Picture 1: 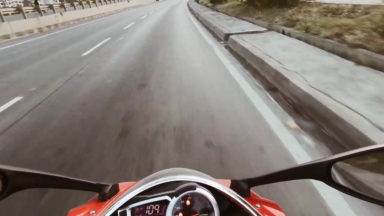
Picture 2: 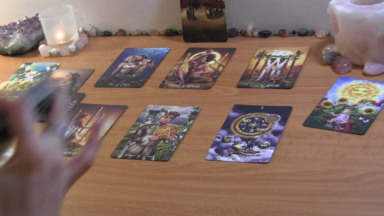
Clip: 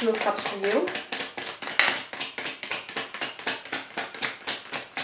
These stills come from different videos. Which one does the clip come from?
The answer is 2